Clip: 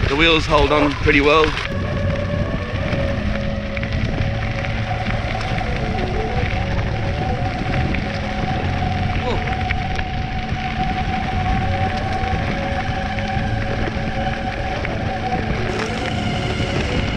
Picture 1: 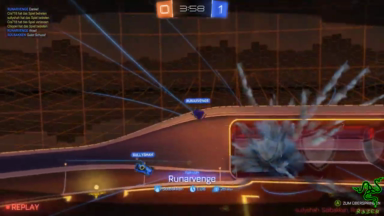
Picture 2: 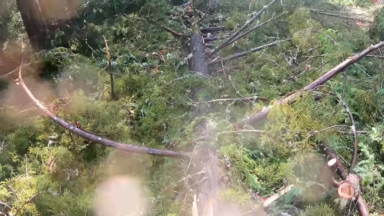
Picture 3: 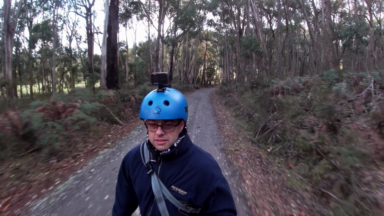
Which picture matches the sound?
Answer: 3